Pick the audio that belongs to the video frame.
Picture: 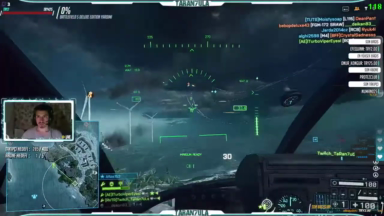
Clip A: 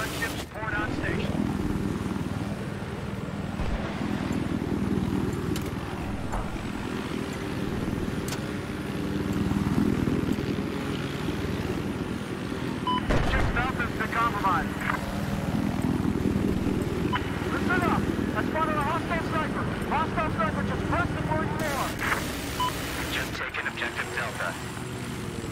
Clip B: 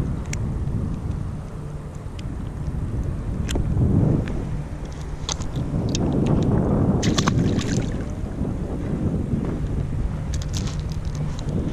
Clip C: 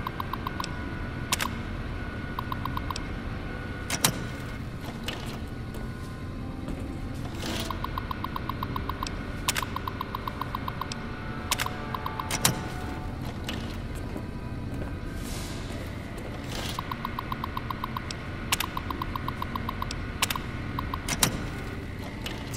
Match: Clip A